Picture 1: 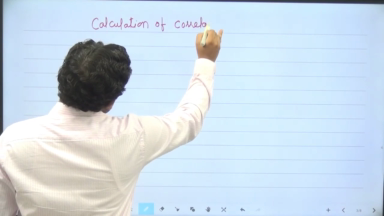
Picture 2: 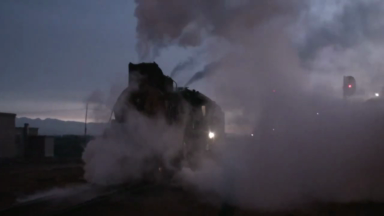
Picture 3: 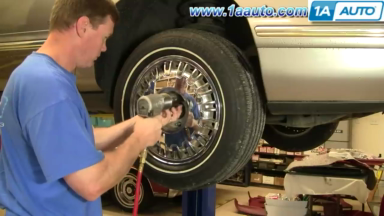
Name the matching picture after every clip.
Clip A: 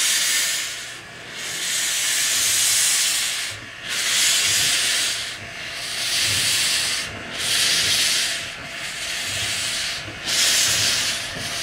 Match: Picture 2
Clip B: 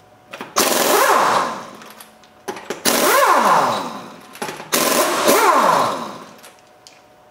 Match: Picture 3